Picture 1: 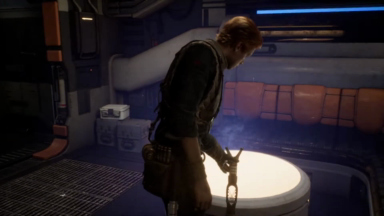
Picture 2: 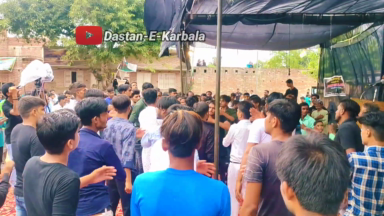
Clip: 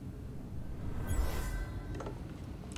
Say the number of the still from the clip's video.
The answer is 1